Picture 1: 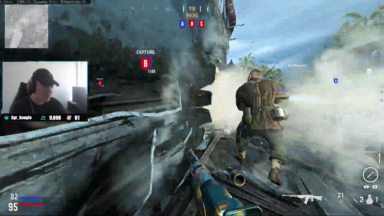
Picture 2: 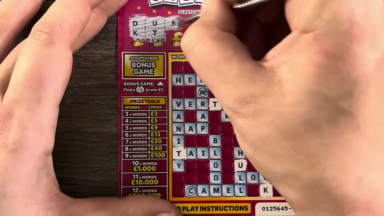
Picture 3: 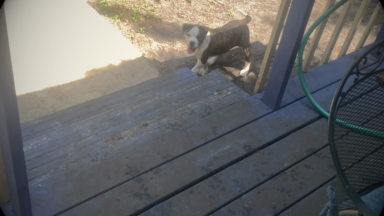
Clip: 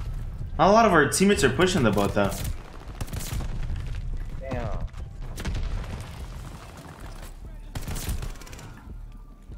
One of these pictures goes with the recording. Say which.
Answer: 1